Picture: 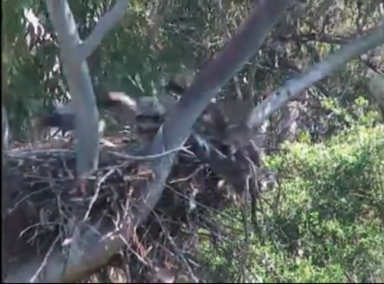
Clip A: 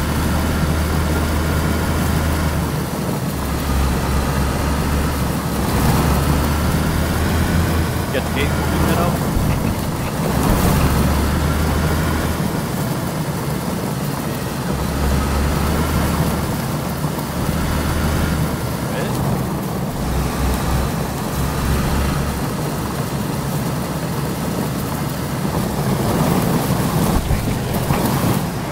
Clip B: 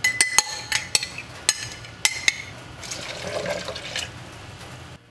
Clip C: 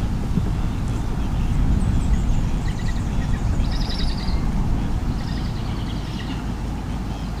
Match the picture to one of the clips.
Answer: C